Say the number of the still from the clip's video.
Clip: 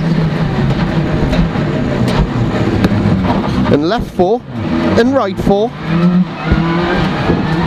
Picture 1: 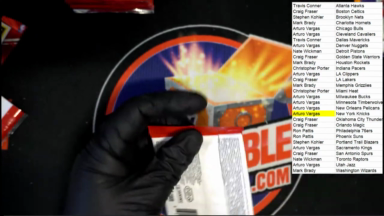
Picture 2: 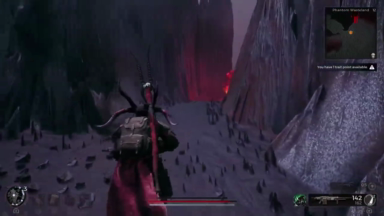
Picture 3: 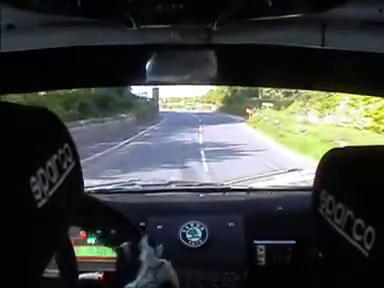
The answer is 3